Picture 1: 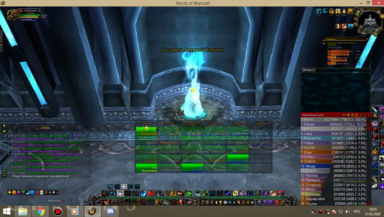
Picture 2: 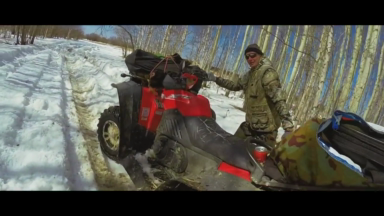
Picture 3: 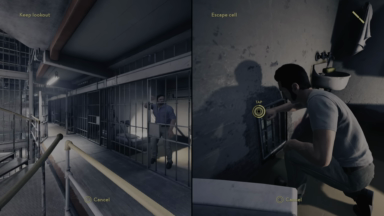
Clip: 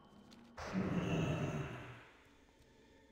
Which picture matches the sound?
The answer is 1